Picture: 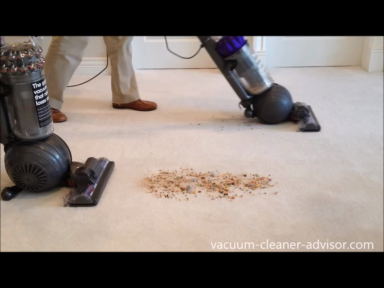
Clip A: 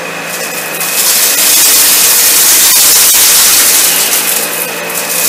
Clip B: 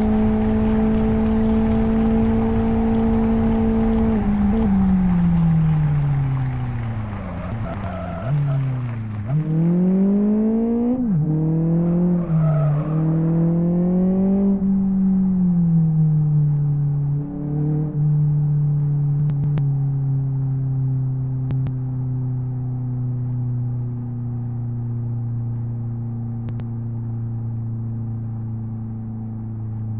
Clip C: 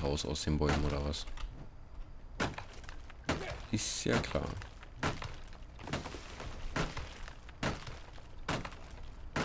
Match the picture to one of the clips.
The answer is A